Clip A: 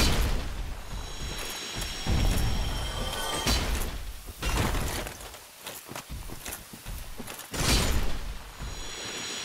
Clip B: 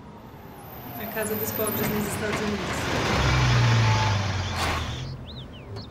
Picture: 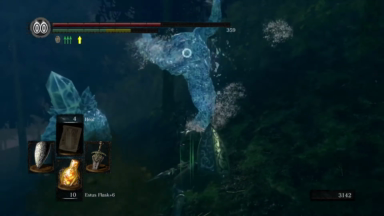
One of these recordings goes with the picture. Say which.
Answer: A